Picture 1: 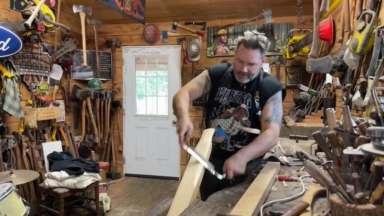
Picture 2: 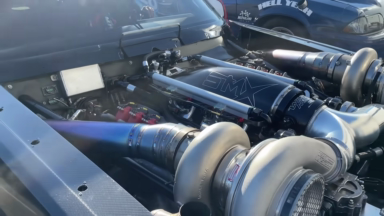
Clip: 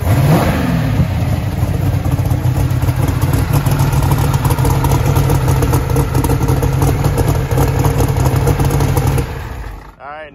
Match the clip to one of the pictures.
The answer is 2